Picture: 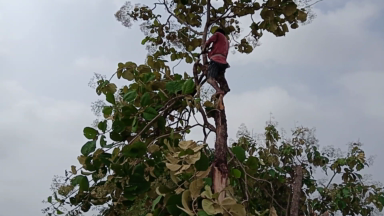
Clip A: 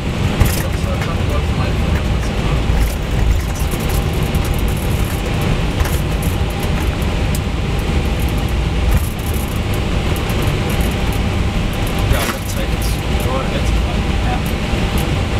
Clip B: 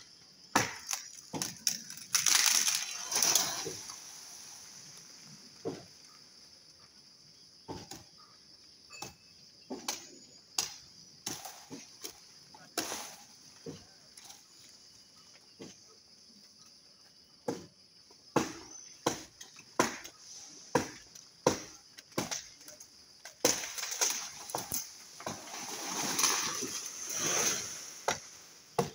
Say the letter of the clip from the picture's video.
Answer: B